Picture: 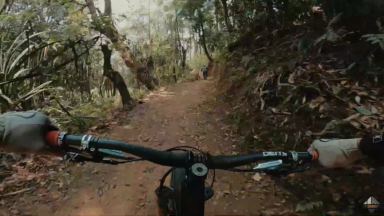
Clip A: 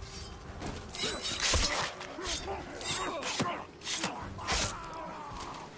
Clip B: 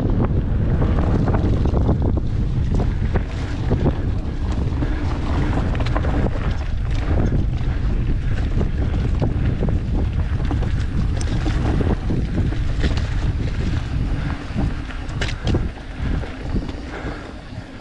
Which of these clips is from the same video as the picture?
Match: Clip B